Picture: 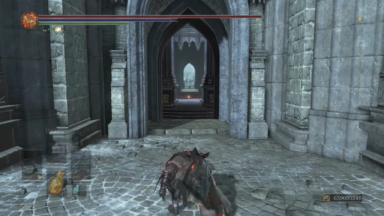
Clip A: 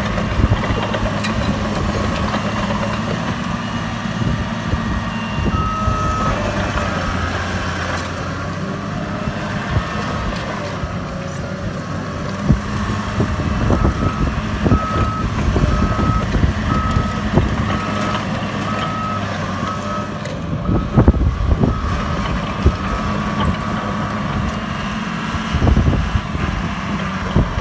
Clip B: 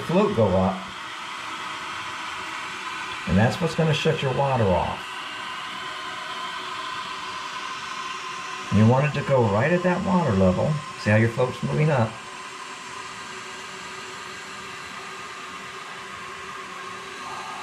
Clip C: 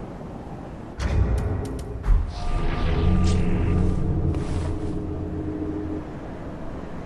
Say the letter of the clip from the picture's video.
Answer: C